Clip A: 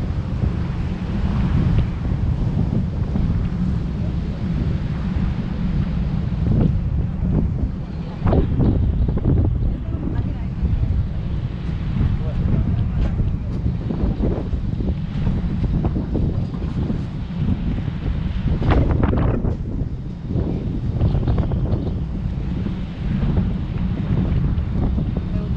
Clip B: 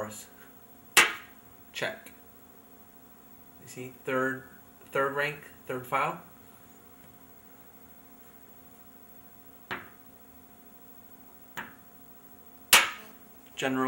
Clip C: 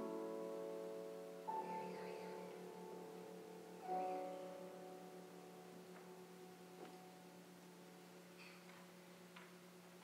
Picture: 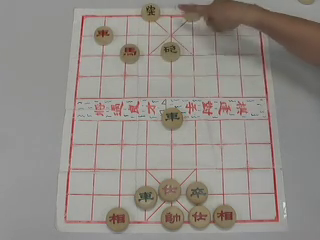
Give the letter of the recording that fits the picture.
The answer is B